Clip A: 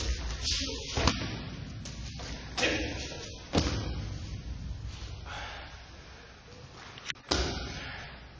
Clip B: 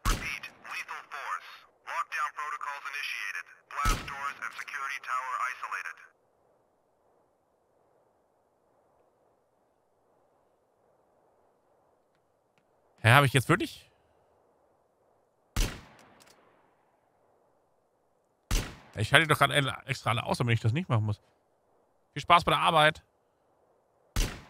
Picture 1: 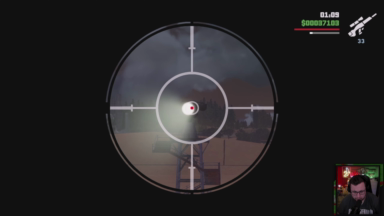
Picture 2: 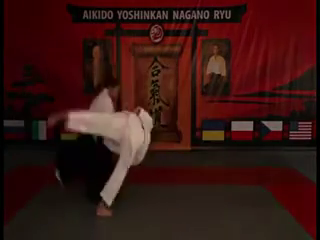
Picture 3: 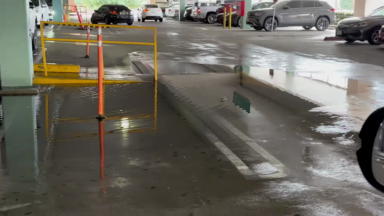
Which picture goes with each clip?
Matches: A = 2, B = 1